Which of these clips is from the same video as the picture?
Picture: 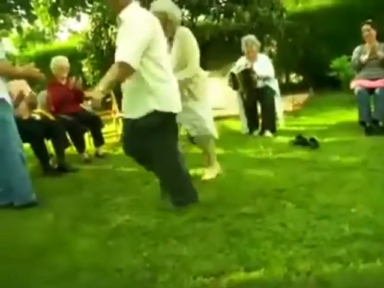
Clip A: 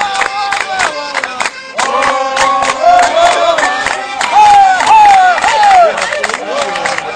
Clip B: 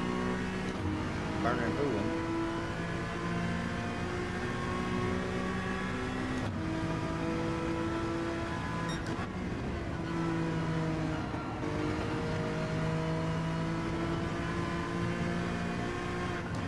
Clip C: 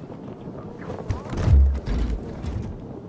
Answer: A